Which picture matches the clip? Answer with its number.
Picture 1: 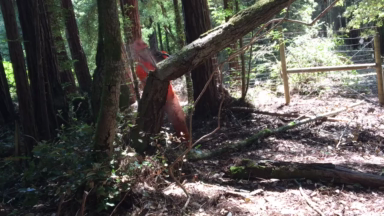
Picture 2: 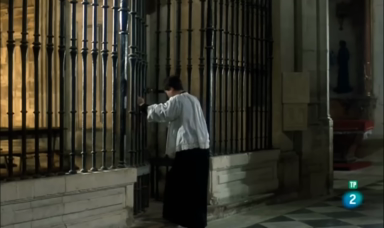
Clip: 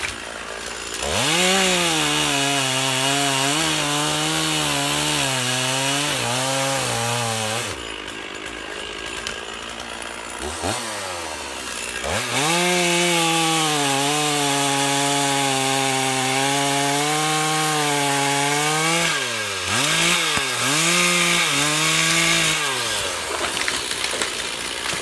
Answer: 1